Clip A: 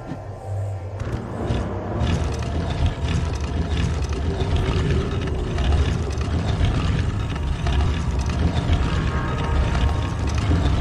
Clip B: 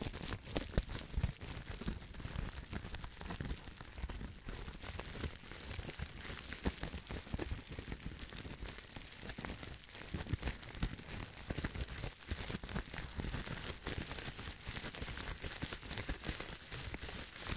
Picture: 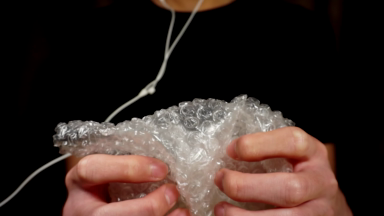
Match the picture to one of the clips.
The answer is B